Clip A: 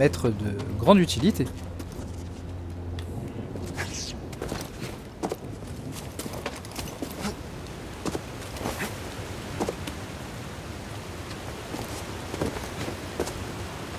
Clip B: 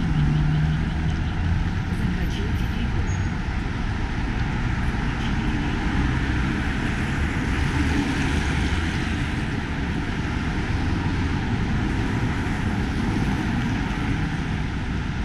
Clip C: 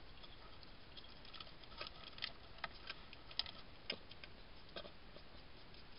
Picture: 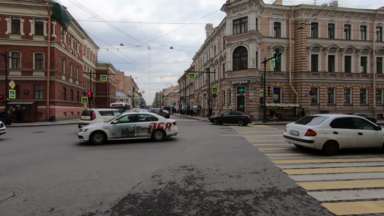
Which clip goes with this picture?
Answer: B